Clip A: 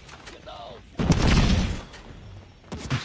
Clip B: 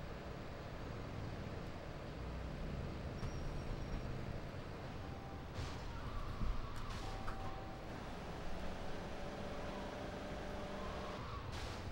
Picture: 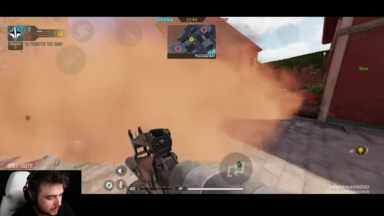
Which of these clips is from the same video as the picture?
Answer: A